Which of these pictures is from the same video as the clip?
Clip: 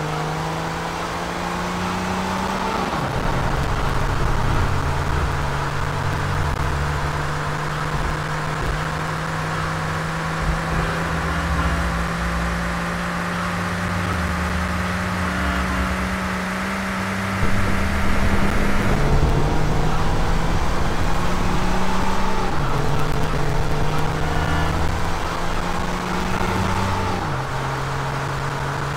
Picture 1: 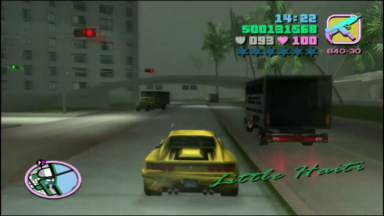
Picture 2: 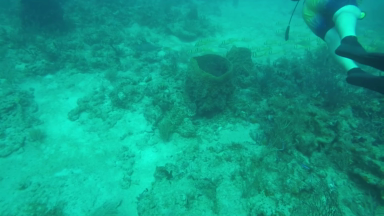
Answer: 1